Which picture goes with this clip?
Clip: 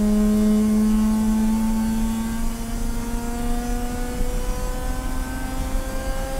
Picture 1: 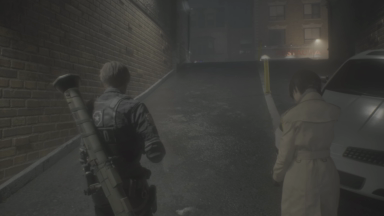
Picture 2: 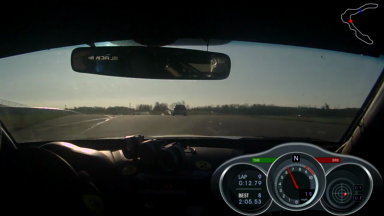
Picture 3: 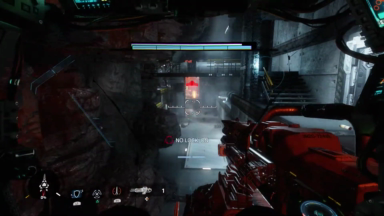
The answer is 2